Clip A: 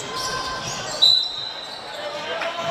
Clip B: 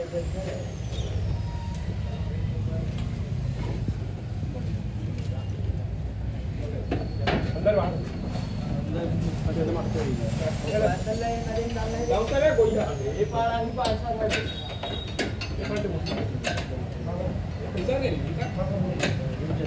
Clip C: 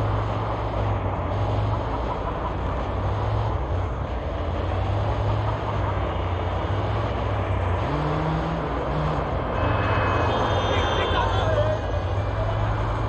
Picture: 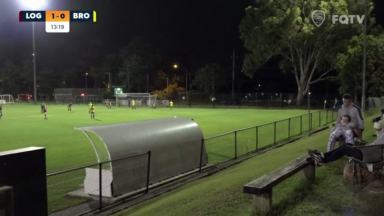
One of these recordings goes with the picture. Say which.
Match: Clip A